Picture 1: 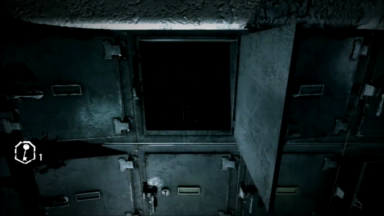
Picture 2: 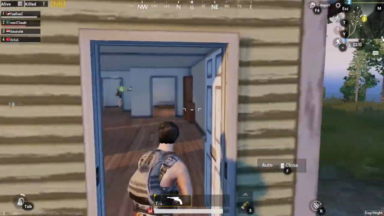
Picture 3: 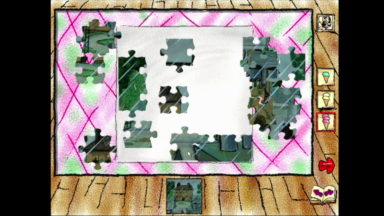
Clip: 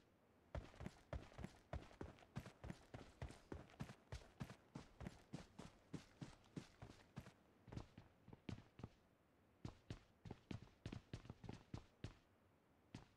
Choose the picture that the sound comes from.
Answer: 2